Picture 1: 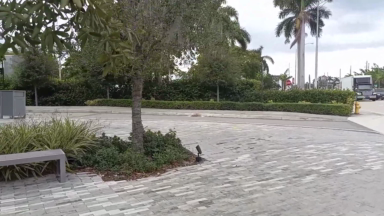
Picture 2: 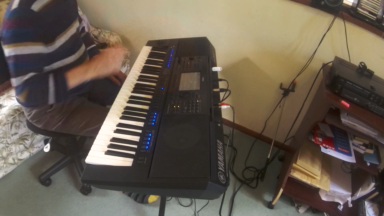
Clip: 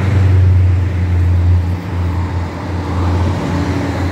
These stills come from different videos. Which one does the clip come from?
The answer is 1